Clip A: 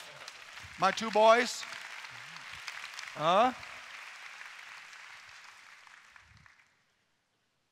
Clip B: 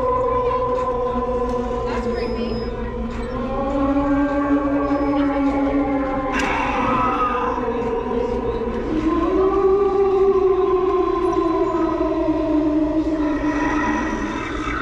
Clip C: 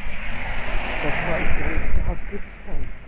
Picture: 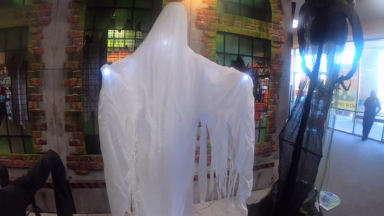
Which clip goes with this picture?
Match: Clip B